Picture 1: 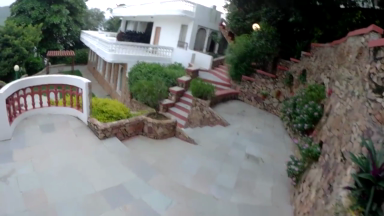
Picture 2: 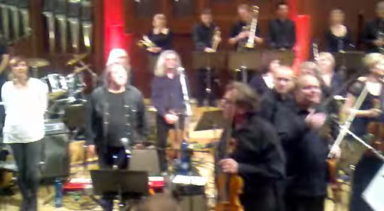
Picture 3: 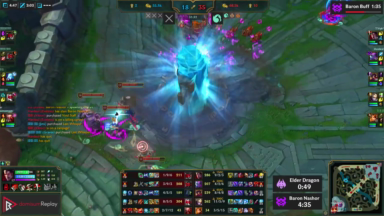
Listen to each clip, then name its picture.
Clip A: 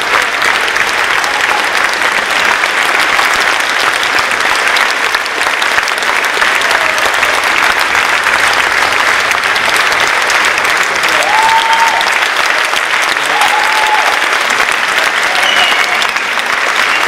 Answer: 2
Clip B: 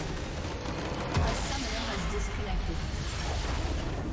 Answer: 3